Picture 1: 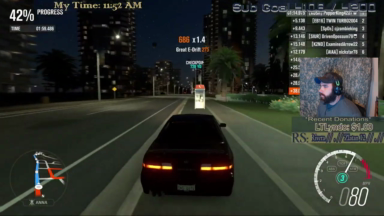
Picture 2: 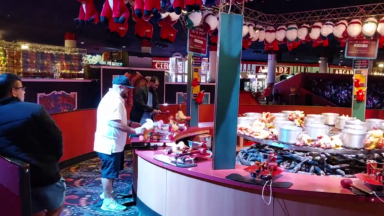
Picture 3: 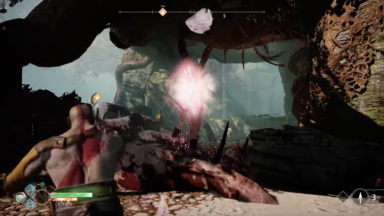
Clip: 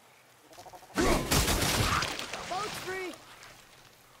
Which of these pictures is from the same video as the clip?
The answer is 3